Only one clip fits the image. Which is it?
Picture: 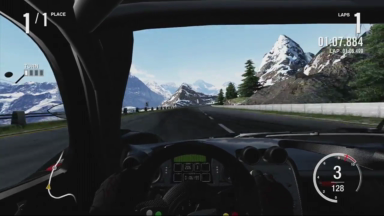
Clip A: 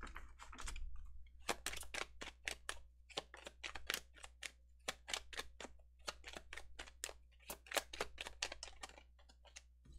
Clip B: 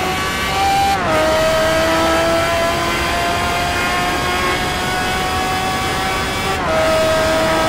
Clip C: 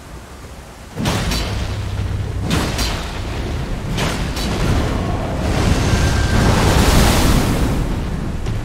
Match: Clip B